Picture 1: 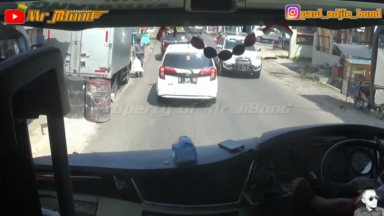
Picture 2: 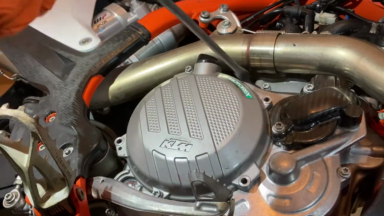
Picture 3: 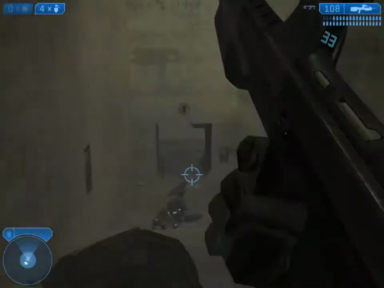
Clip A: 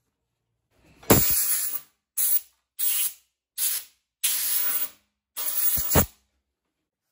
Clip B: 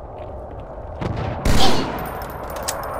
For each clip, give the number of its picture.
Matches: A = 2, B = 3